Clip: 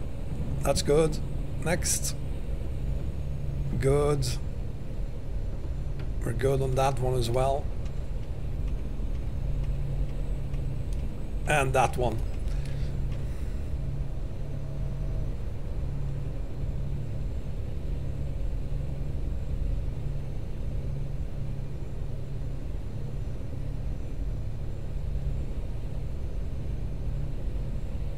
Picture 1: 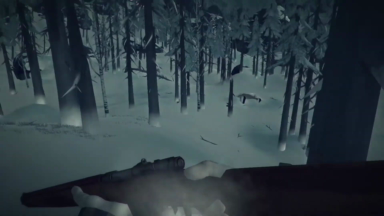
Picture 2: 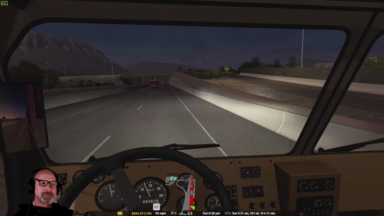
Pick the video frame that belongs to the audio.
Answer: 2